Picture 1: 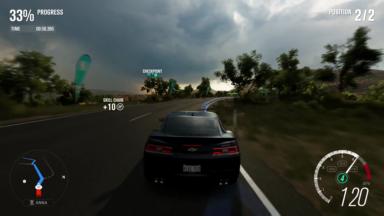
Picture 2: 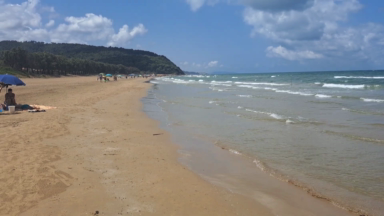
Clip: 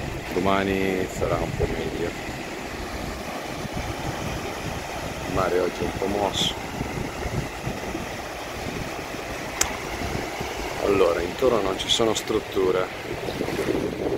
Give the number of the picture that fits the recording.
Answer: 2